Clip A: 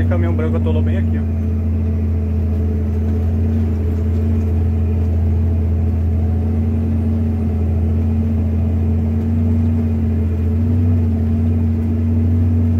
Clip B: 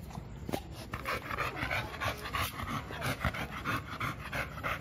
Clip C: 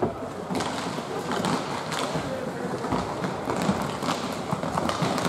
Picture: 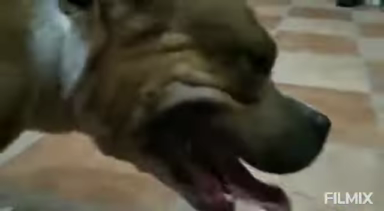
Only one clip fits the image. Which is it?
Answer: B